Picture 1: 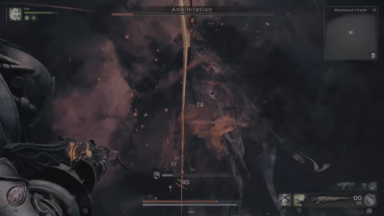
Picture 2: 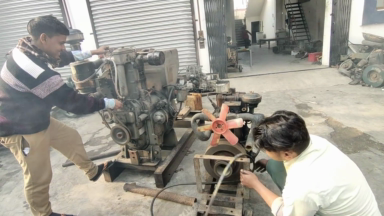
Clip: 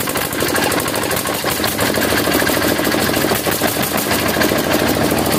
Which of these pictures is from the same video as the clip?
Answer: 2